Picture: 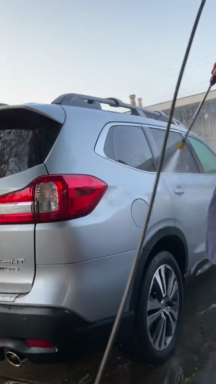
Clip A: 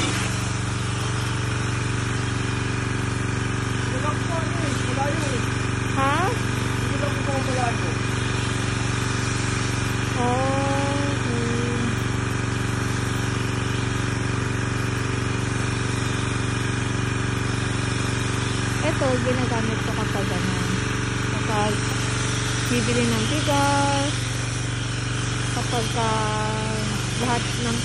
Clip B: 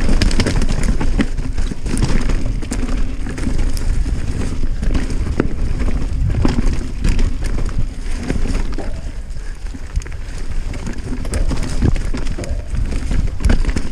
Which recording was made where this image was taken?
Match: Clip A